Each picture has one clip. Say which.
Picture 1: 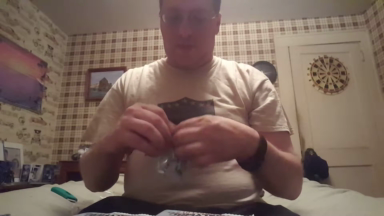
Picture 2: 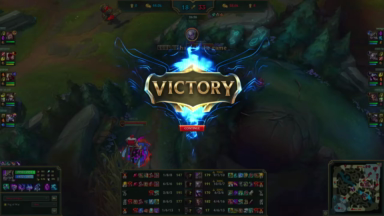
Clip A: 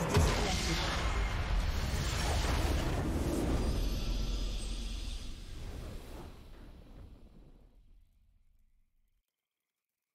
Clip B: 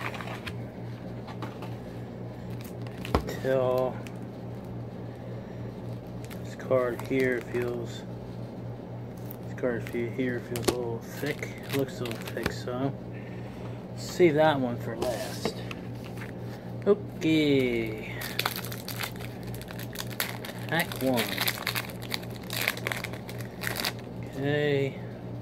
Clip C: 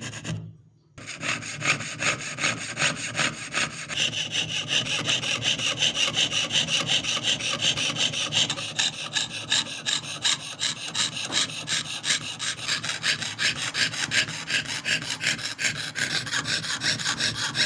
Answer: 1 B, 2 A